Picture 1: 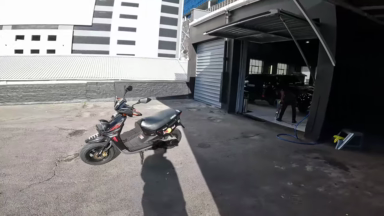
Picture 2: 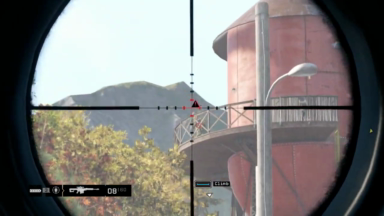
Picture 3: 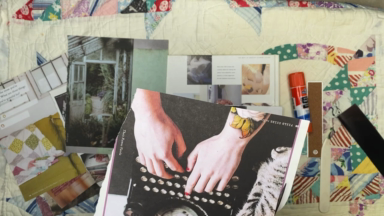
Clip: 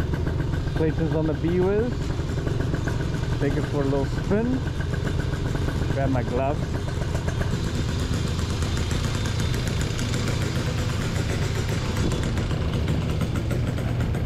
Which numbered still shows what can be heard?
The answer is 1